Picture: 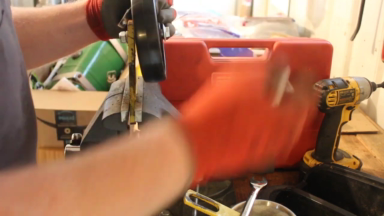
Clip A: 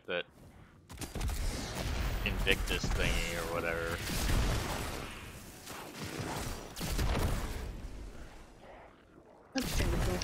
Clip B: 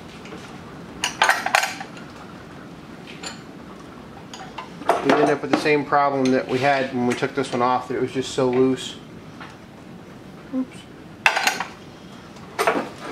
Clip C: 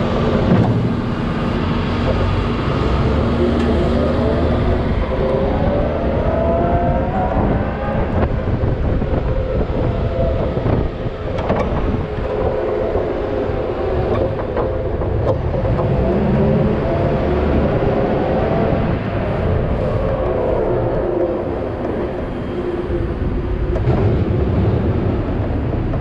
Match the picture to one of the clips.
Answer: B